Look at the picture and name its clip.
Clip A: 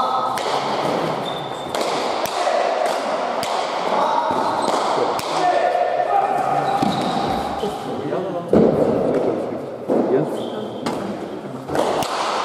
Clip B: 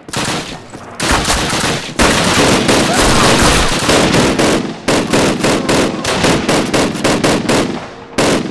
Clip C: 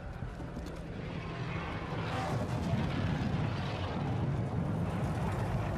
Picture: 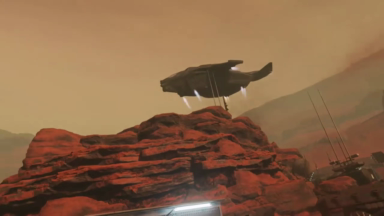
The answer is C